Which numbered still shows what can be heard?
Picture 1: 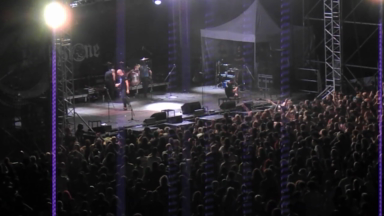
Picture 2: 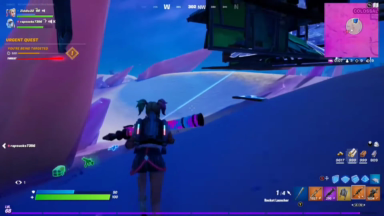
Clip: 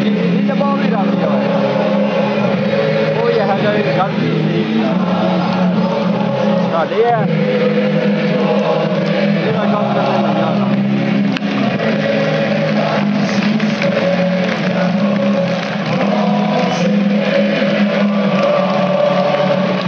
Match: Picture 1